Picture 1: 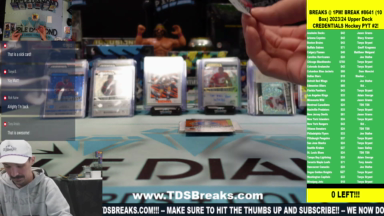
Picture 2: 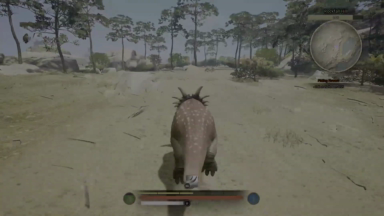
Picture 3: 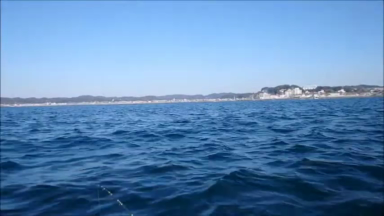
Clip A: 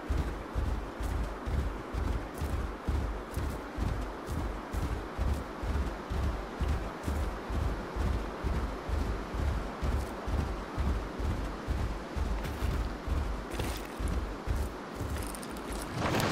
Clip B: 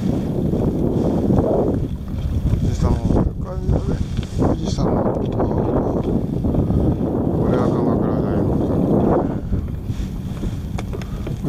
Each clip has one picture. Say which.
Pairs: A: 2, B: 3